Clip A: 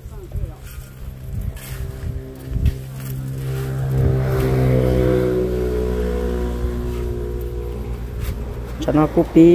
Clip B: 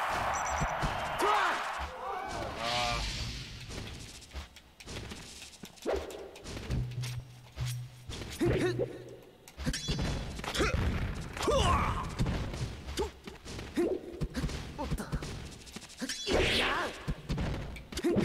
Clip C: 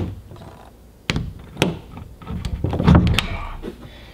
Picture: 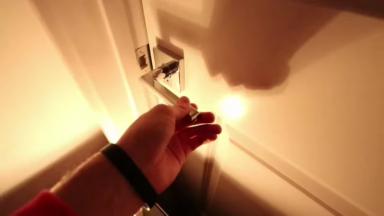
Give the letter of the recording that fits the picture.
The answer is C